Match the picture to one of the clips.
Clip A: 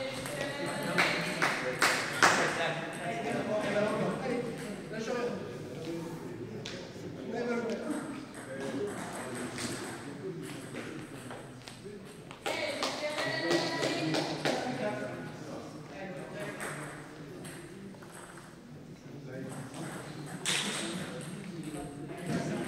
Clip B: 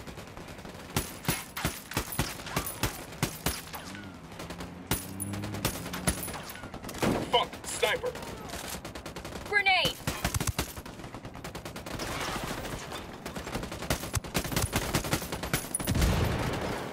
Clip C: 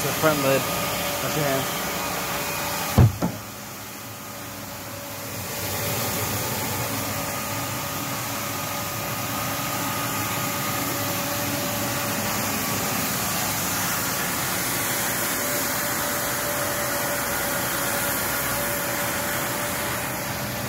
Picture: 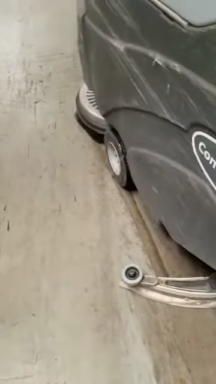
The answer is C